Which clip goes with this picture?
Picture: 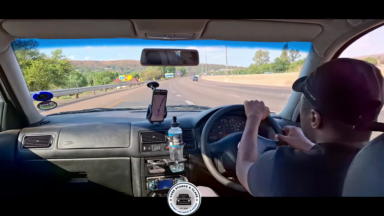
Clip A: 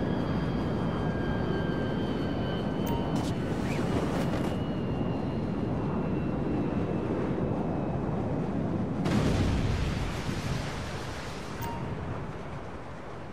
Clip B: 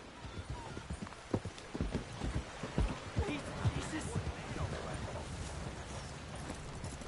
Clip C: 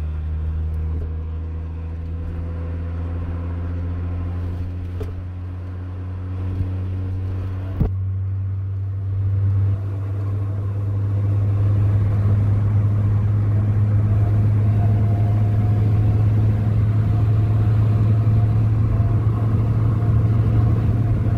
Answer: C